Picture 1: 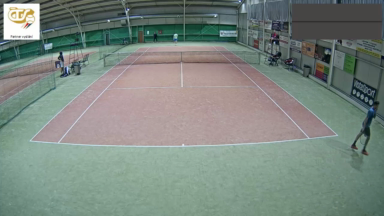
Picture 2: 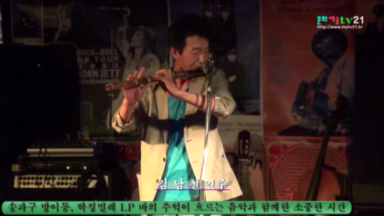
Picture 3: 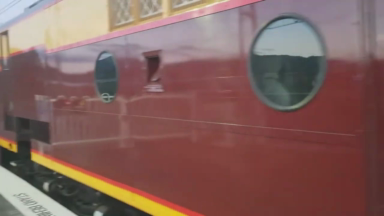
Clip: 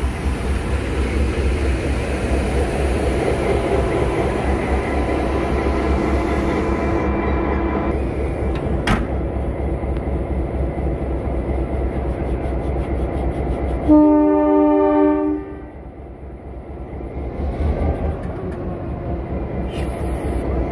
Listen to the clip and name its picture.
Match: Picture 3